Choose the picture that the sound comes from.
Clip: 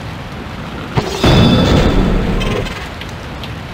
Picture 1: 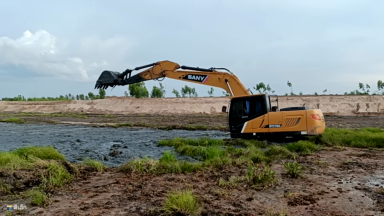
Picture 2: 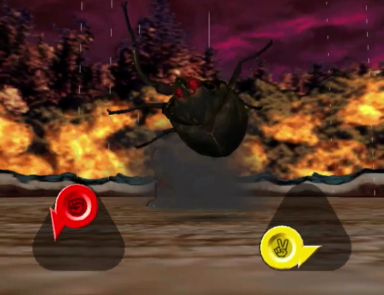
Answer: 2